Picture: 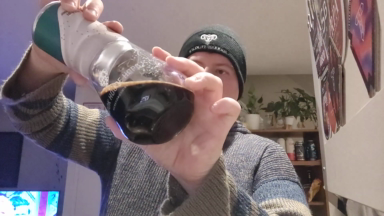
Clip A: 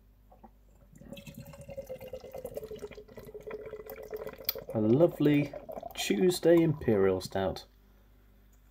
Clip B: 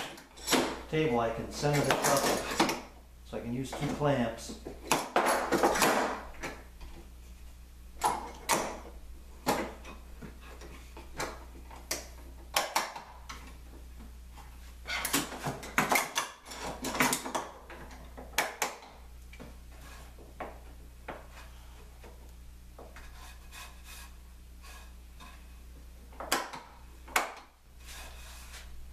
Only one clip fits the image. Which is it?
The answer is A